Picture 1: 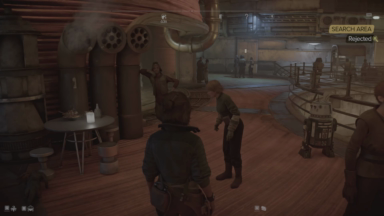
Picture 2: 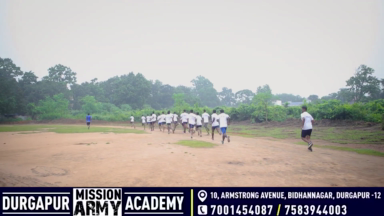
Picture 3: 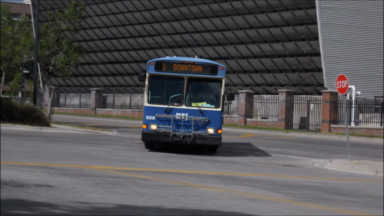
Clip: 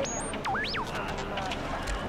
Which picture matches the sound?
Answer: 1